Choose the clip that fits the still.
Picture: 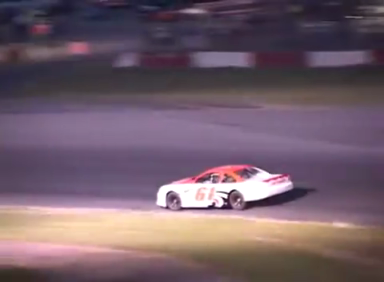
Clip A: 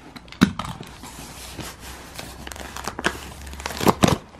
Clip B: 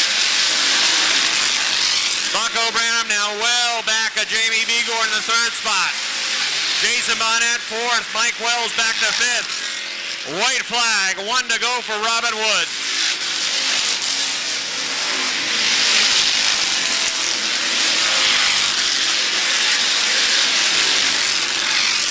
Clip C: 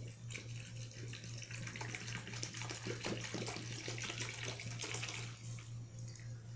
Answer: B